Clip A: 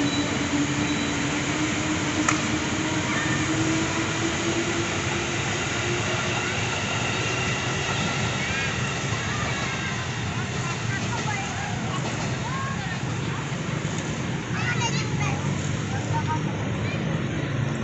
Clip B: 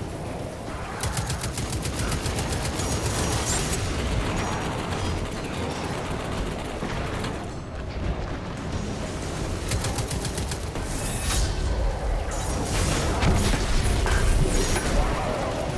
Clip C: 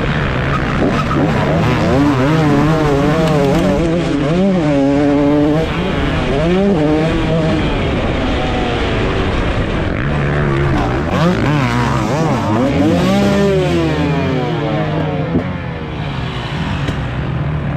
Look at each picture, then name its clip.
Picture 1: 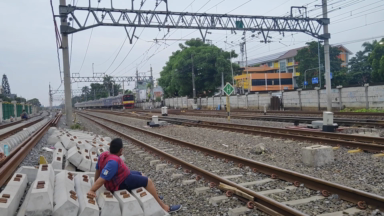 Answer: A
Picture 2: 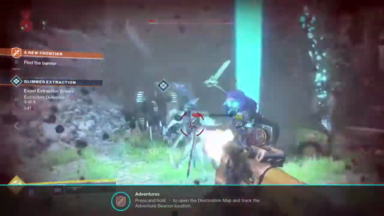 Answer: B